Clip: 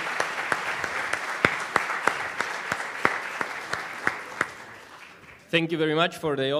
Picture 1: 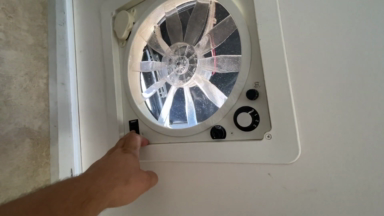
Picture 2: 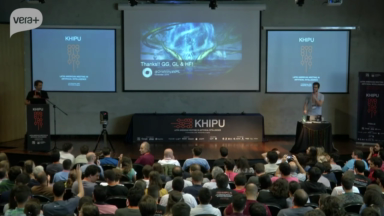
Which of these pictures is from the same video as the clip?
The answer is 2